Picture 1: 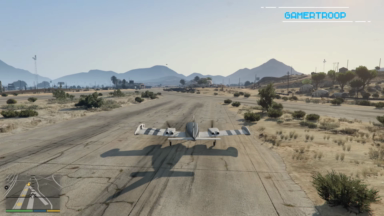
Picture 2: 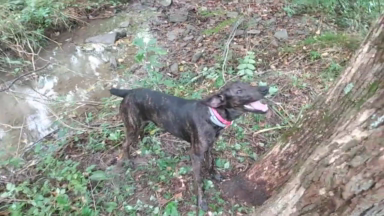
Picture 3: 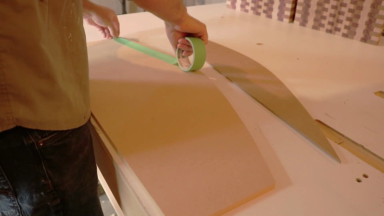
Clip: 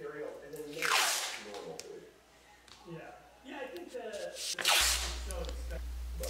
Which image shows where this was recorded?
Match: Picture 3